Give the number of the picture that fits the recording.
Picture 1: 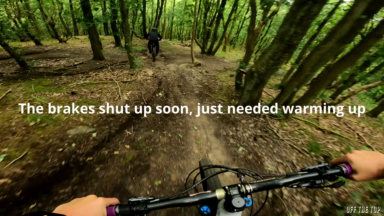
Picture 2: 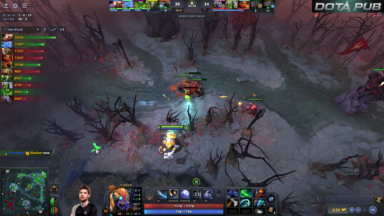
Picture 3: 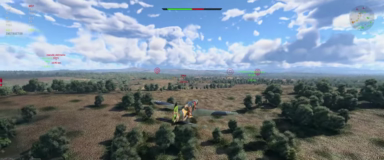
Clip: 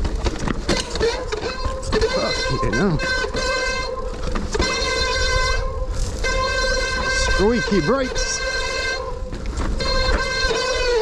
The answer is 1